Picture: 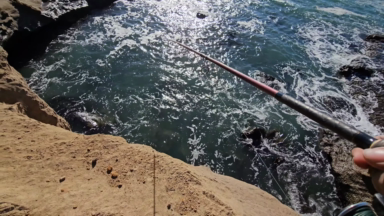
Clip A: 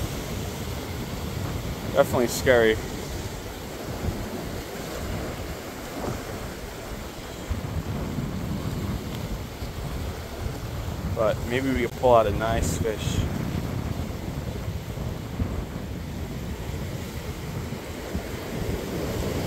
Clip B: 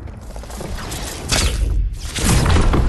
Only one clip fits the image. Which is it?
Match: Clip A